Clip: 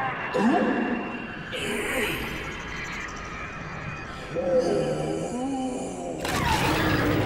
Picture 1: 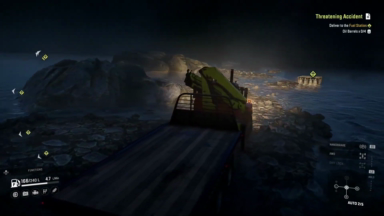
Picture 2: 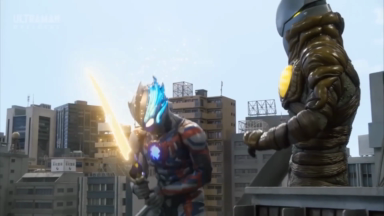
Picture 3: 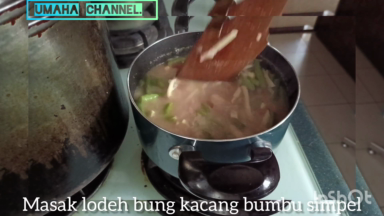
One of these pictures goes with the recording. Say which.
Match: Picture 2